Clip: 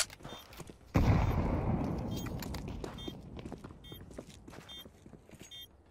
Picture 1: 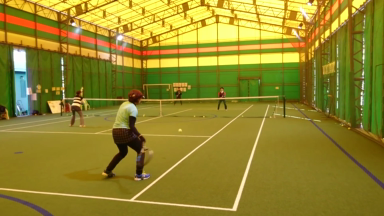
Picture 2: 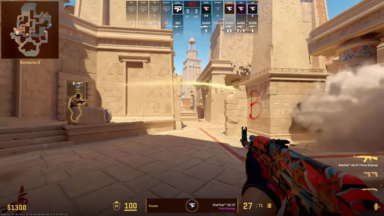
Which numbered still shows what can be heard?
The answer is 2